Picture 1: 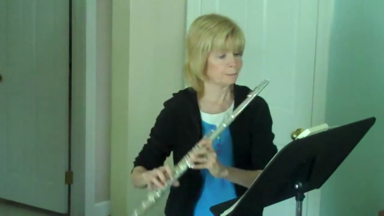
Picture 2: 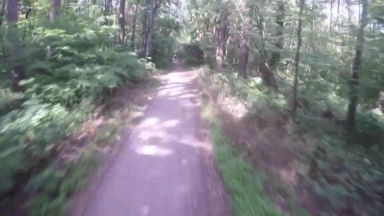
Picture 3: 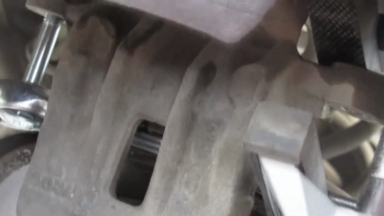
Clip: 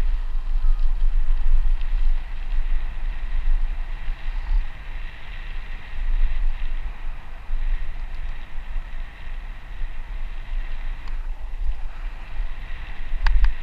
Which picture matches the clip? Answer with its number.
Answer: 2